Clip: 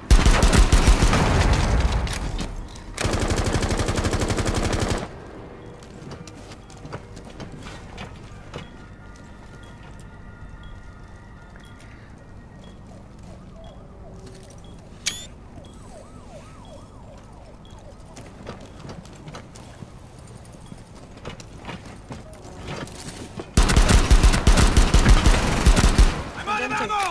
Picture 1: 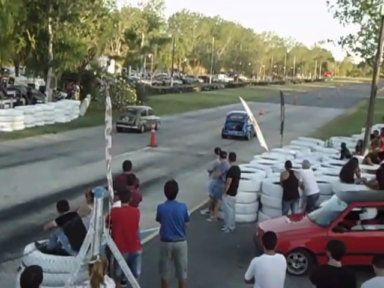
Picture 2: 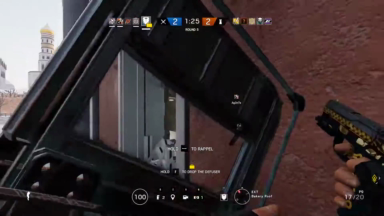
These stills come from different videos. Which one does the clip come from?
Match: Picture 2